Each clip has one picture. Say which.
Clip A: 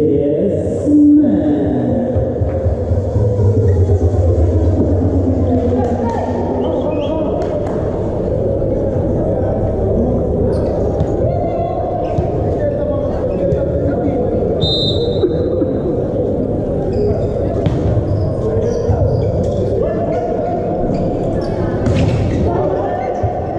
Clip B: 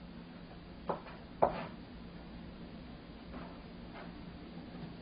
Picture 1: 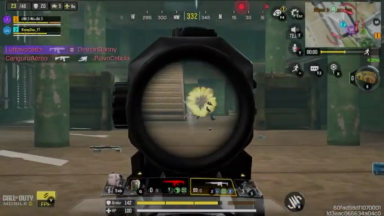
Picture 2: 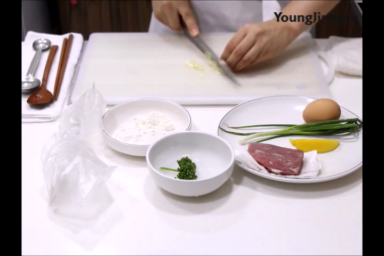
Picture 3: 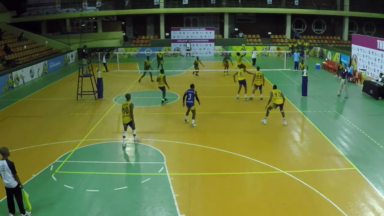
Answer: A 3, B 2